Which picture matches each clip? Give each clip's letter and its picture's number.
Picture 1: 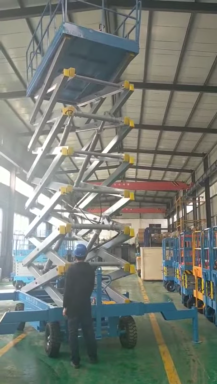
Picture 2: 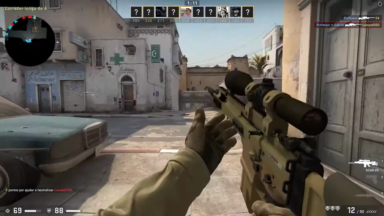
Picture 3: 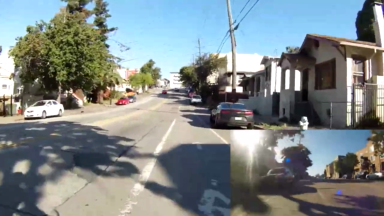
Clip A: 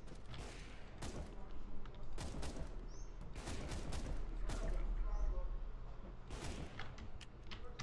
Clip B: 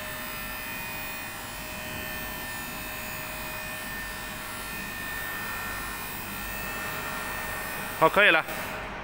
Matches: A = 2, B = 1